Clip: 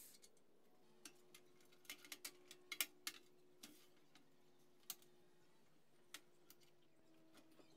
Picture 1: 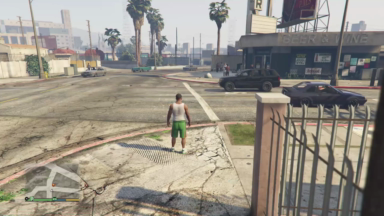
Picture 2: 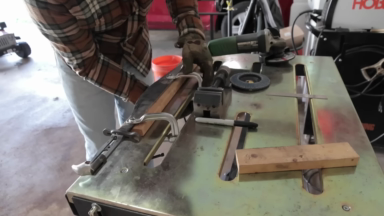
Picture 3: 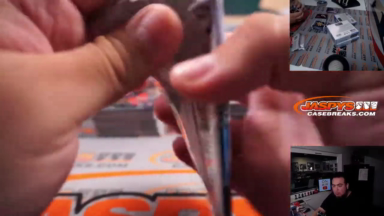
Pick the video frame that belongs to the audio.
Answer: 2